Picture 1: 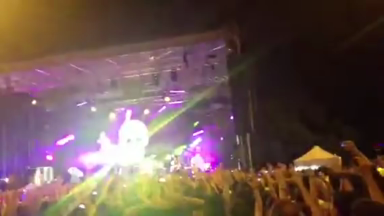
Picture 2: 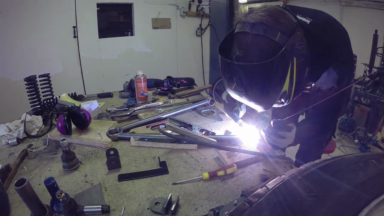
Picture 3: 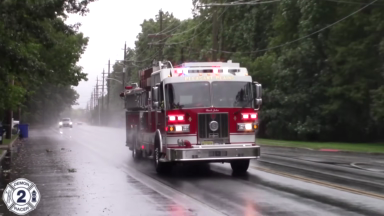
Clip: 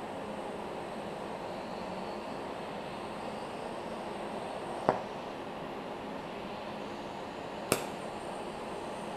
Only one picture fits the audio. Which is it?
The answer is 2